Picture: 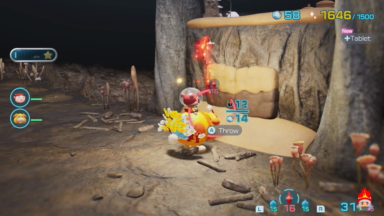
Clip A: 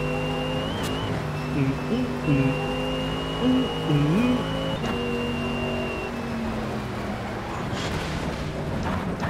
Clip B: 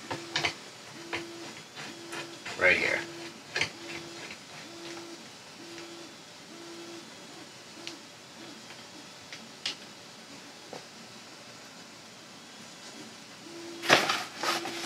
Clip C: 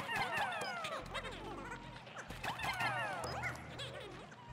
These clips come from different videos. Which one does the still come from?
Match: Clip C